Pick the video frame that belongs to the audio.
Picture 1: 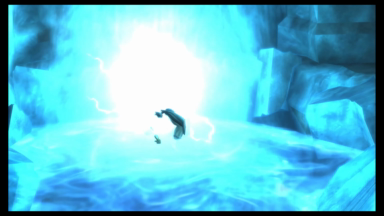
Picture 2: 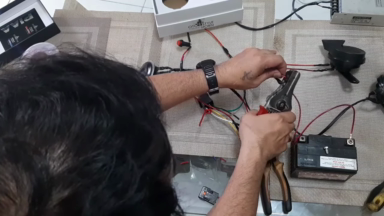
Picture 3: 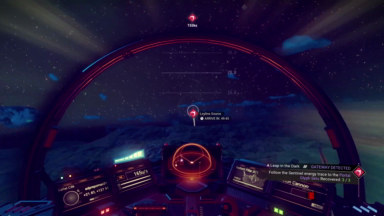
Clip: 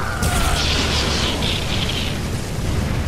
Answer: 1